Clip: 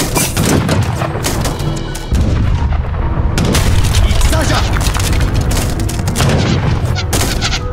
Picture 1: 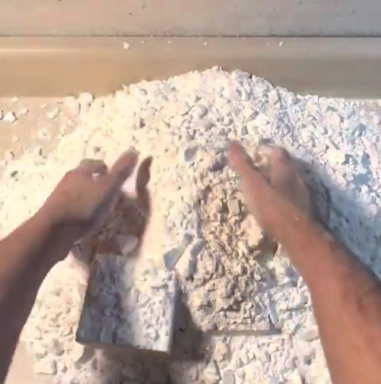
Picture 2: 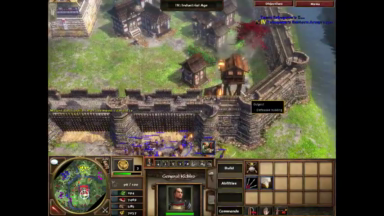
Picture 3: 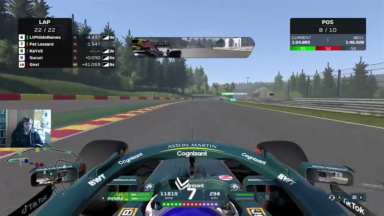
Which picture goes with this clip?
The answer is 2